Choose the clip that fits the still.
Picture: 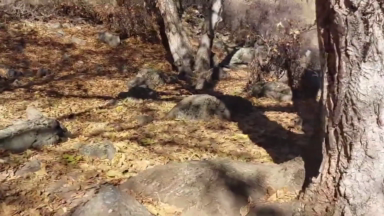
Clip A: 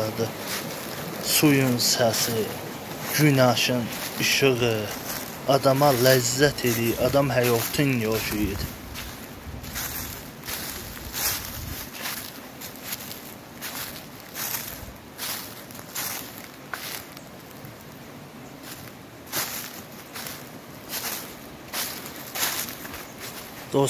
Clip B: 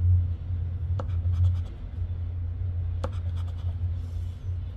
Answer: A